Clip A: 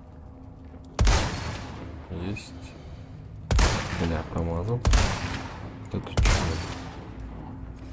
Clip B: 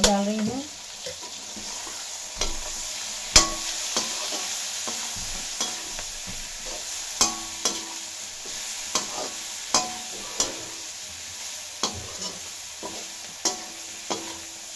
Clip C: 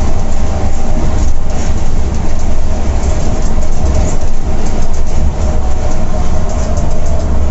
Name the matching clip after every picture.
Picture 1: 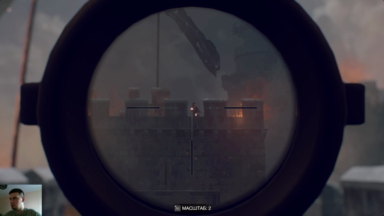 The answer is A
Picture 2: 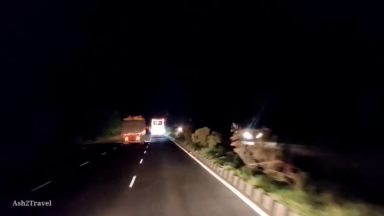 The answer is C